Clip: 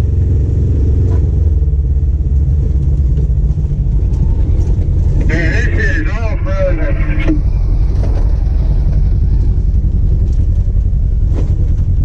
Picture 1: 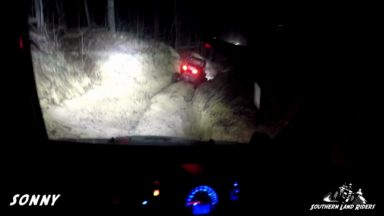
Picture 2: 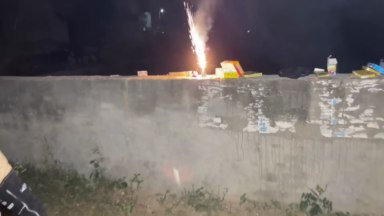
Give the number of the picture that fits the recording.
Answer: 1